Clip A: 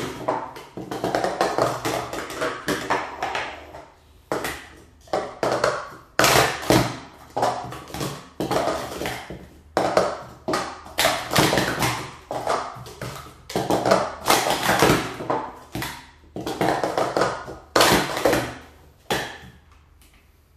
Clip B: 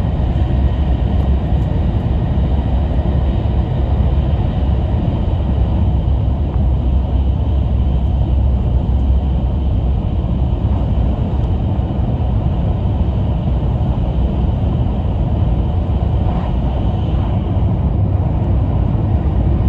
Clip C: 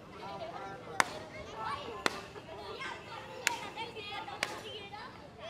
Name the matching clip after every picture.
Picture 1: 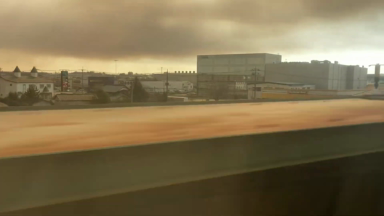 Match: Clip B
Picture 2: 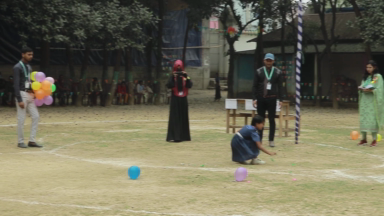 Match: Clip C